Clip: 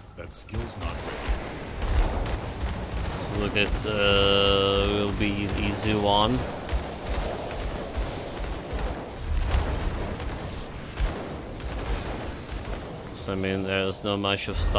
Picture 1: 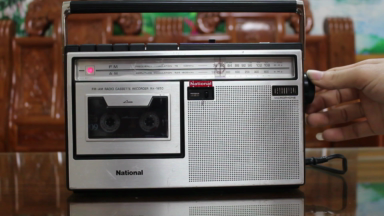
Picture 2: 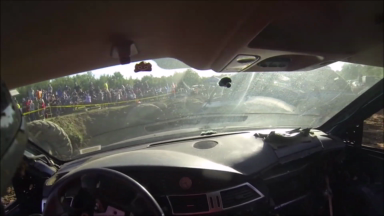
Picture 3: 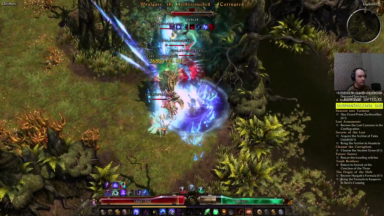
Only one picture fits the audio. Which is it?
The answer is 3